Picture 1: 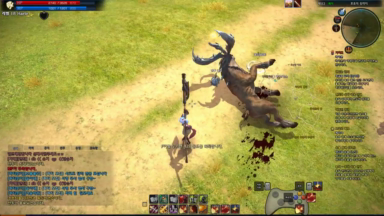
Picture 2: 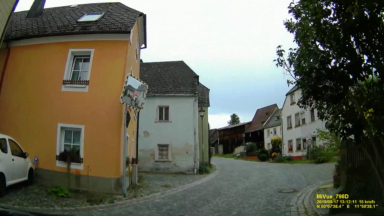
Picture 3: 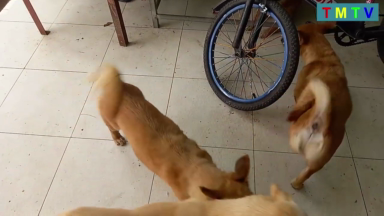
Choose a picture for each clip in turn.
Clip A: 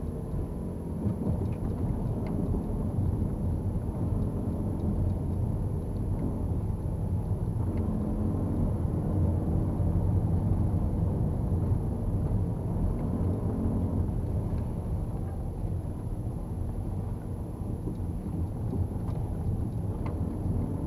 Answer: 2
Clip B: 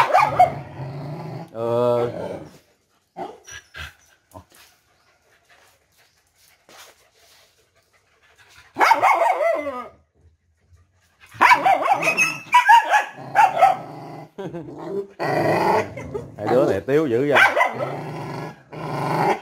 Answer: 3